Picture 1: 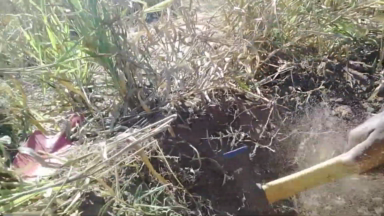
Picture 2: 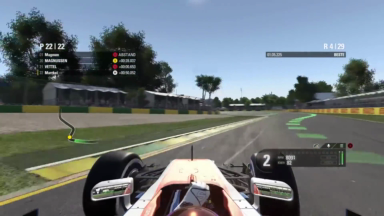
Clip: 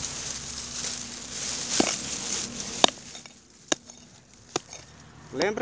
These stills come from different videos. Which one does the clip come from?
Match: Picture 1